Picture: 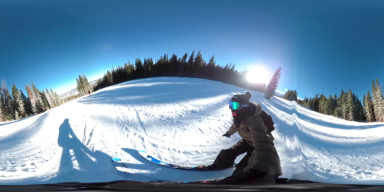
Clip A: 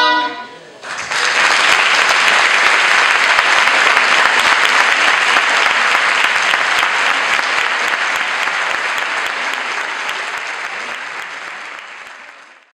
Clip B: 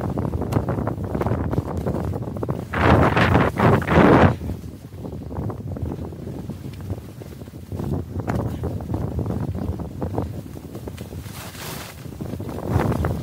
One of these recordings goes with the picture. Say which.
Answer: B